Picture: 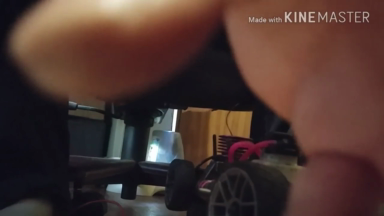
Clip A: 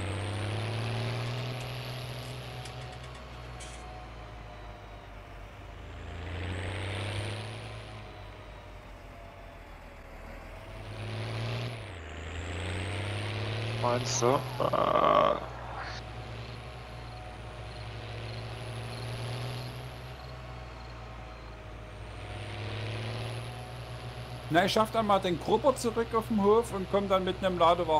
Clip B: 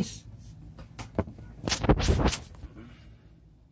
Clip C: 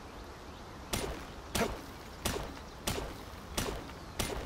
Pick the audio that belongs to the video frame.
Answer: B